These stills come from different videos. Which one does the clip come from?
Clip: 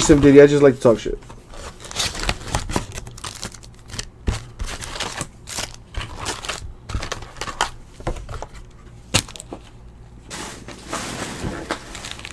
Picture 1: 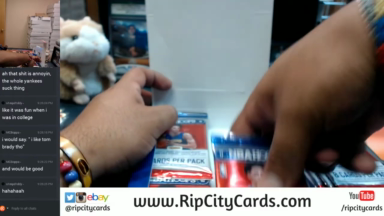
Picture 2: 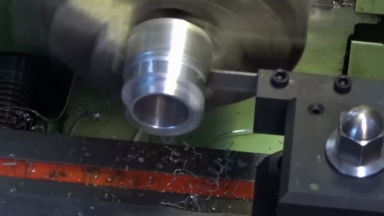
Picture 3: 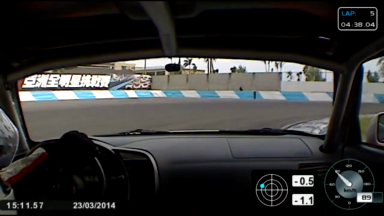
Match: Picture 1